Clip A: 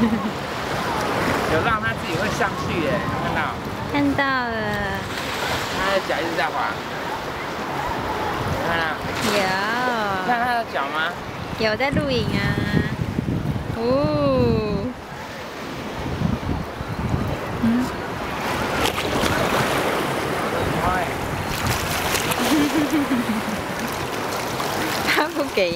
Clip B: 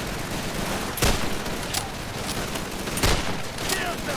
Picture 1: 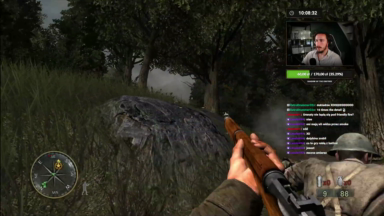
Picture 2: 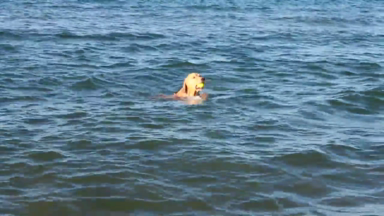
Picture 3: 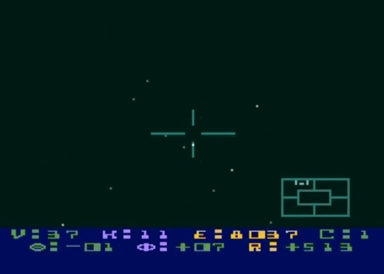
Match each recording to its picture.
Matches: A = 2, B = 1